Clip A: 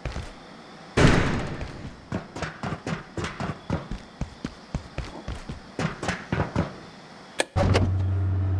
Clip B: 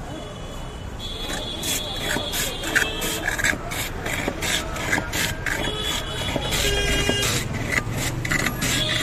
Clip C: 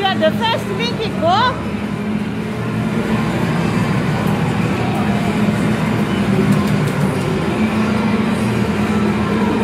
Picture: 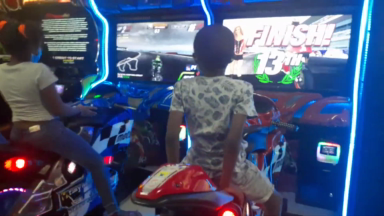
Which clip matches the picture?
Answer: C